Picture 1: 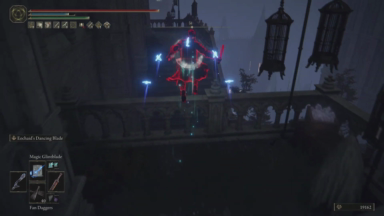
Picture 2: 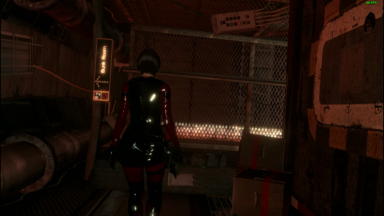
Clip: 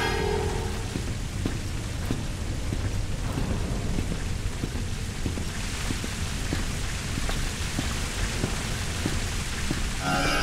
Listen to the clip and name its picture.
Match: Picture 2